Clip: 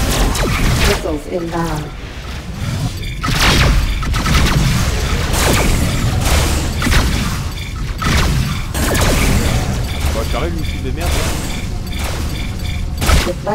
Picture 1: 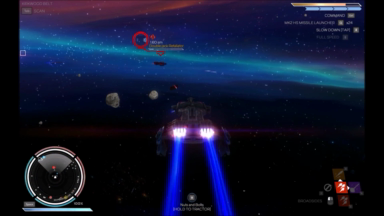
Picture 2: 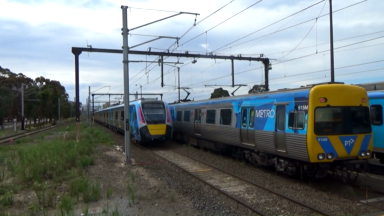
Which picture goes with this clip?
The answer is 1